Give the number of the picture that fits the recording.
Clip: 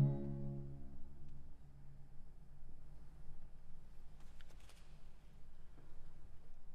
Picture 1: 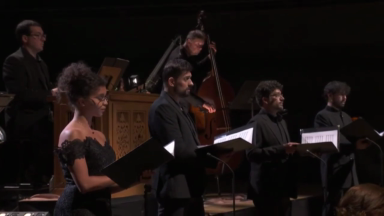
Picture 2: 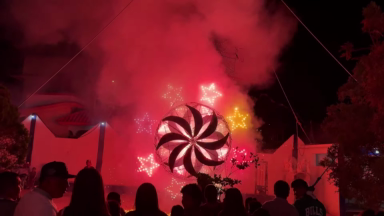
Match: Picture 1